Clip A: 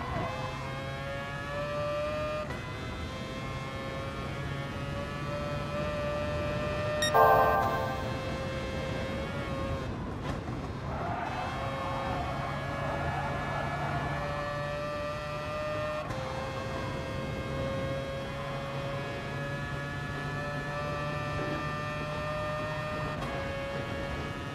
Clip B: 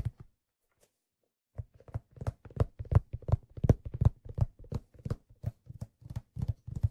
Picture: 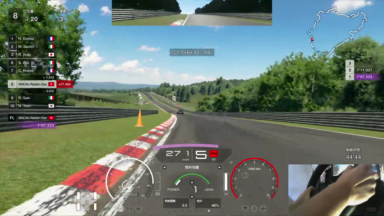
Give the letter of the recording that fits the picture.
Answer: A